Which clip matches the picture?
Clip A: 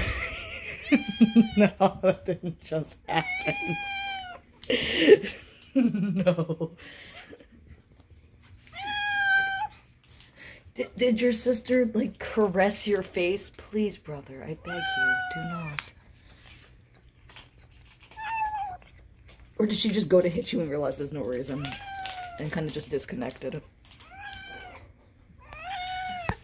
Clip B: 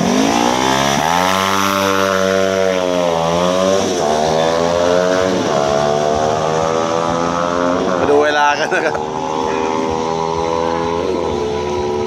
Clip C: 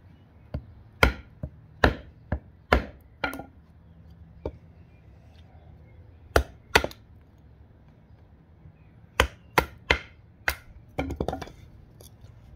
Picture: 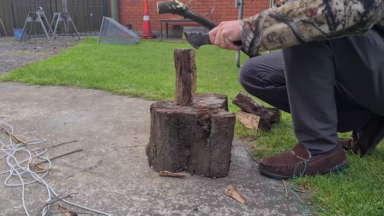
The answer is C